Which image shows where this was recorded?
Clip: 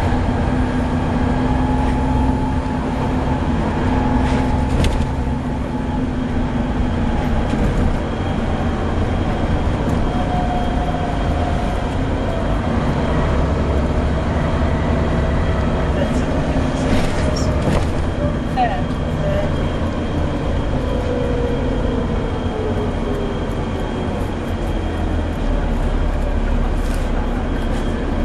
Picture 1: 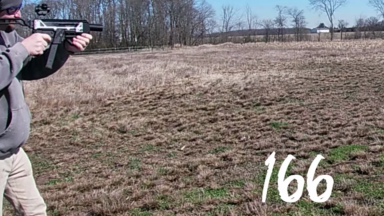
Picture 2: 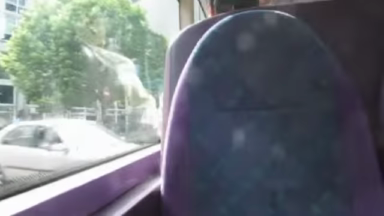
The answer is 2